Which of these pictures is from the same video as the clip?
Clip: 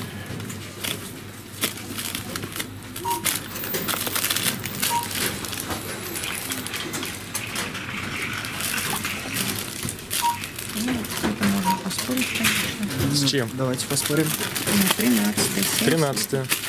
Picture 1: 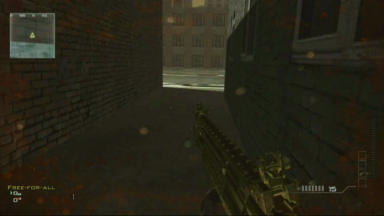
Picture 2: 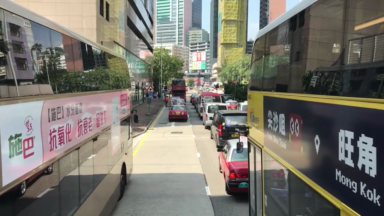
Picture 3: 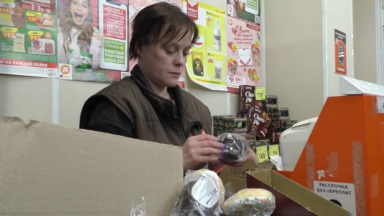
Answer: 3